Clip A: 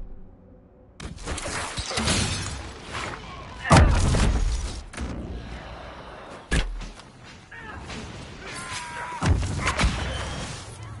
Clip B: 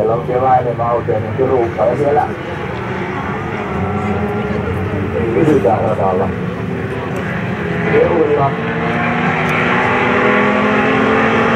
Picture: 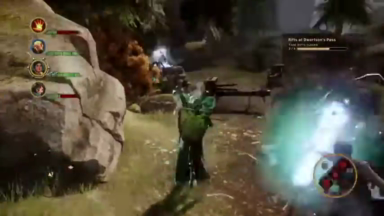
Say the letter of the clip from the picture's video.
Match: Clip A